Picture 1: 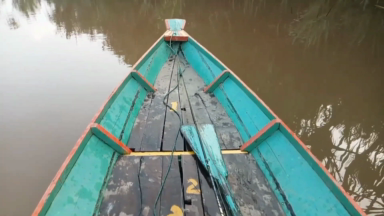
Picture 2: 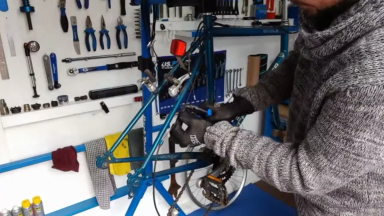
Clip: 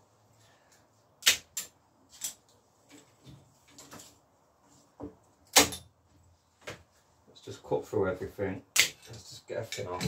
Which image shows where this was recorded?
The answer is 2